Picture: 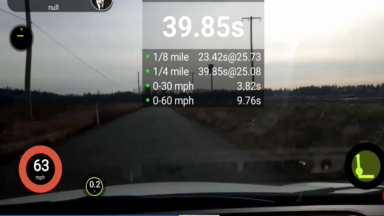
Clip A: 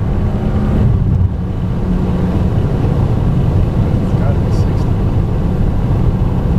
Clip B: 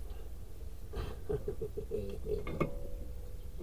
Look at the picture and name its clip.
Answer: A